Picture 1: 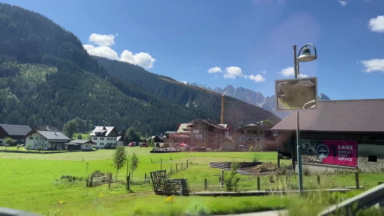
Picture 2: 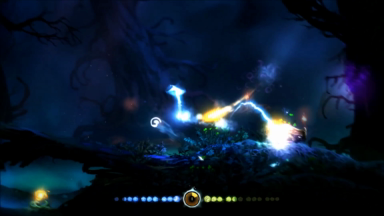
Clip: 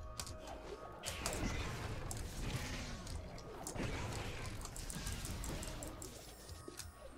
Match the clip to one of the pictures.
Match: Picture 2